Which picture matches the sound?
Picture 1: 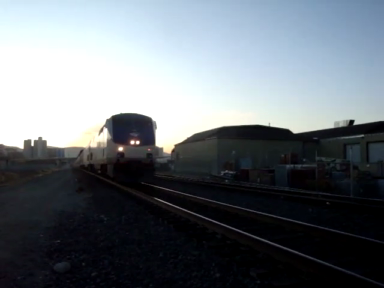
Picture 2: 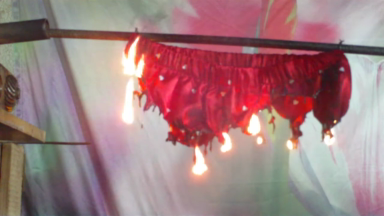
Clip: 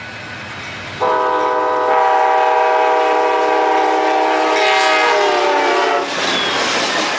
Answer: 1